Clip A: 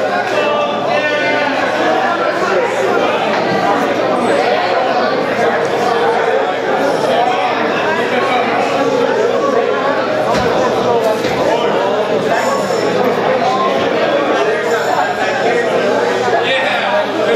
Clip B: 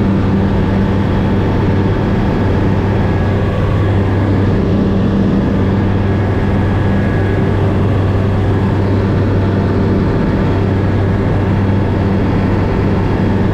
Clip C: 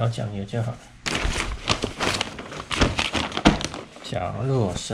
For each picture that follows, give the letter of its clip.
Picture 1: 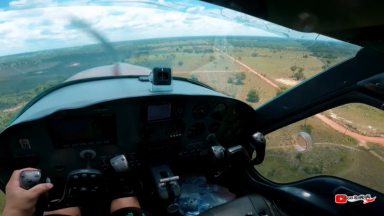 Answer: B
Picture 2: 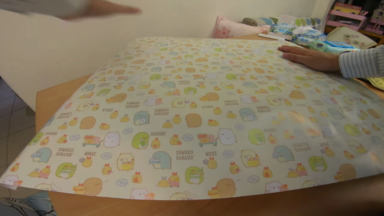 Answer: C